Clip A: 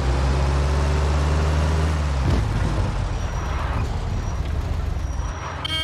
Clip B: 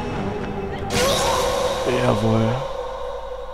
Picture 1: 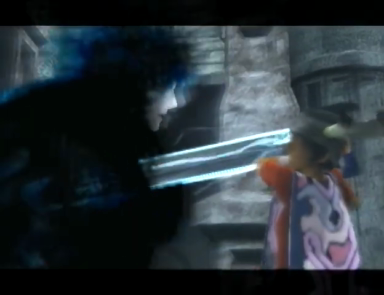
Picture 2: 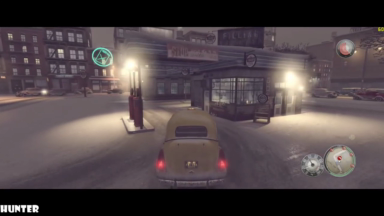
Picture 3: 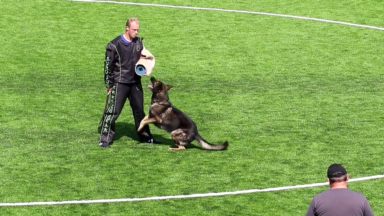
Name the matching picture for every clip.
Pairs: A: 2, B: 1